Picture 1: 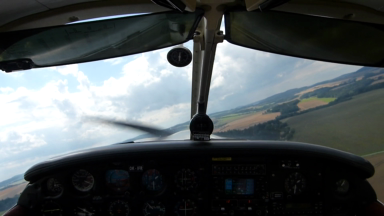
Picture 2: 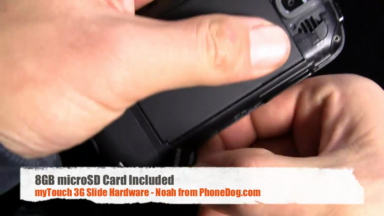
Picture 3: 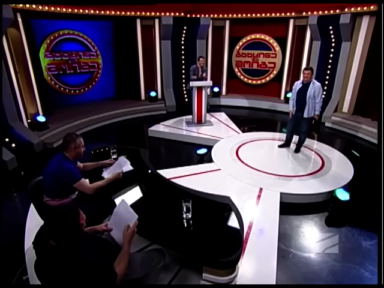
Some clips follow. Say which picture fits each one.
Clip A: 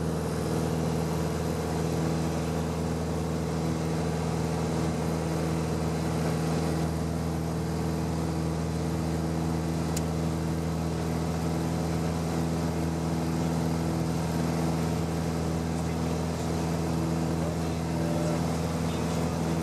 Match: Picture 1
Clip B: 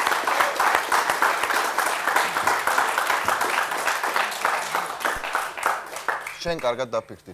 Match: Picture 3